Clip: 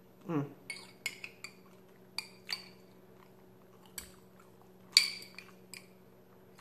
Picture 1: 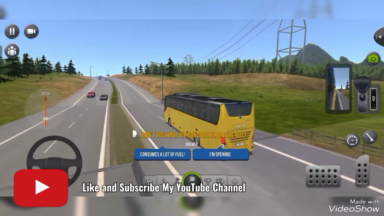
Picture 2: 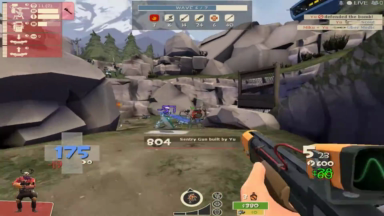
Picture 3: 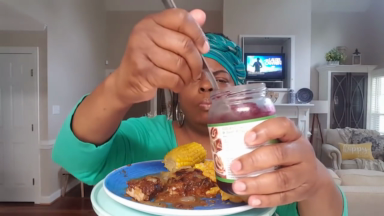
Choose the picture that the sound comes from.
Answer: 3